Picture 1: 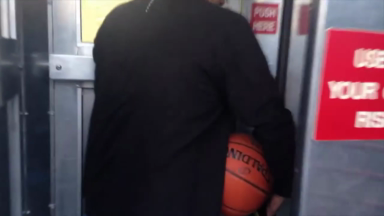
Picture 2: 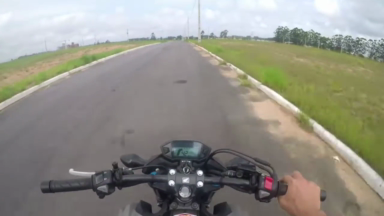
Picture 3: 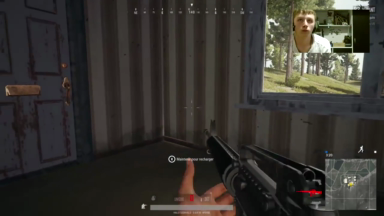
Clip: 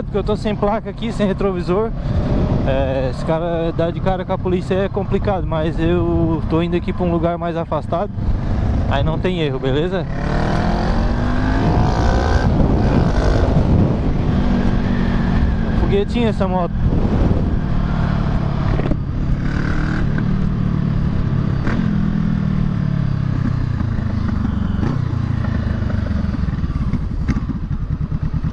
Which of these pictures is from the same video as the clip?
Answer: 2